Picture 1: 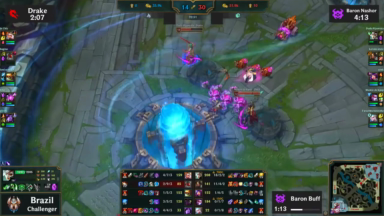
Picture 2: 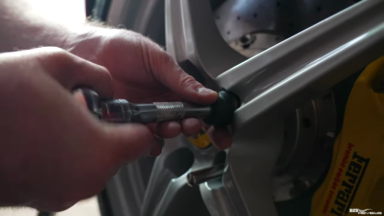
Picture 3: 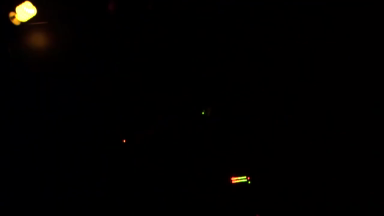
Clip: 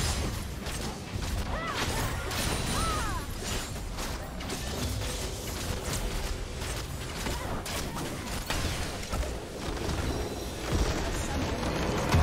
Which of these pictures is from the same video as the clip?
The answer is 1